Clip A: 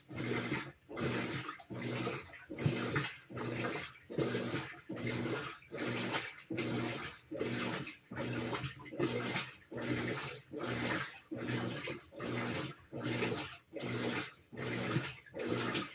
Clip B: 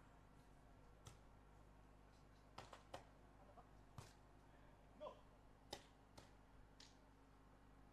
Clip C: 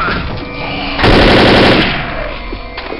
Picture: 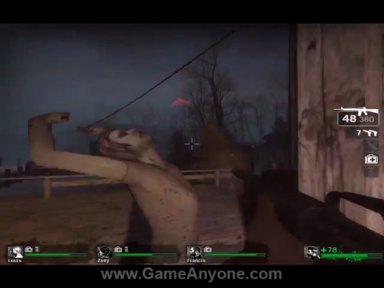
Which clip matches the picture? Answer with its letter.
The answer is C